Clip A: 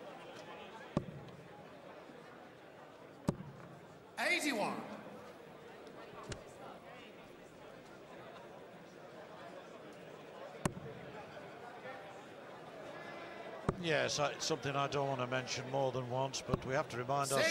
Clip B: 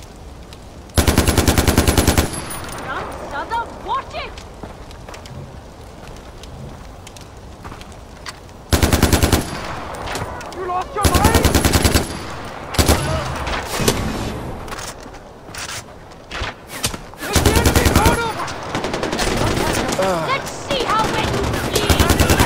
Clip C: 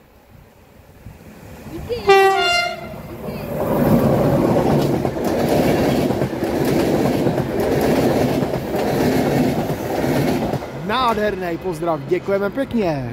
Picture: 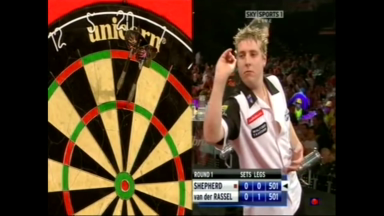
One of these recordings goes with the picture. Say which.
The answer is A